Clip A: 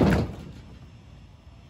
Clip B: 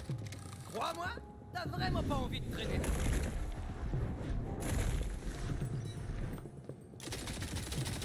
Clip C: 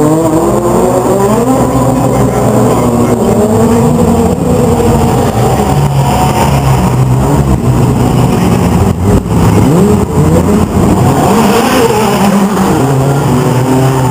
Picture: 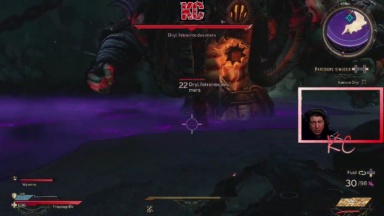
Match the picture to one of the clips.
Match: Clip B